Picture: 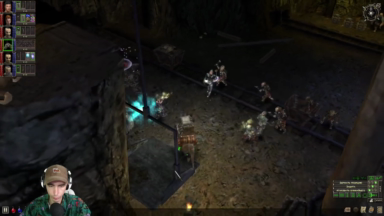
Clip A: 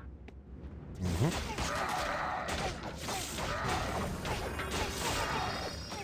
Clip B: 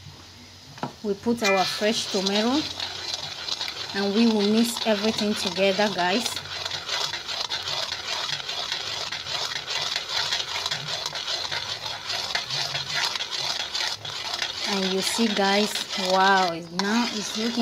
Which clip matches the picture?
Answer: A